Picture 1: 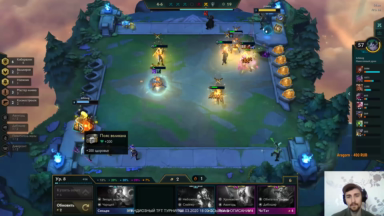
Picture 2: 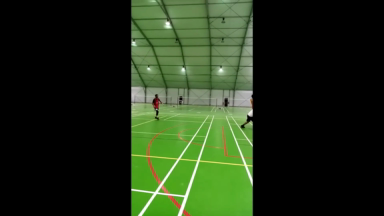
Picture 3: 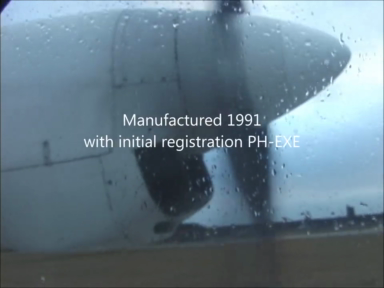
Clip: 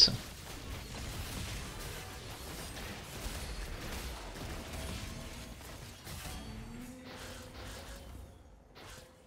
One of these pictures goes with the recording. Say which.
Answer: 1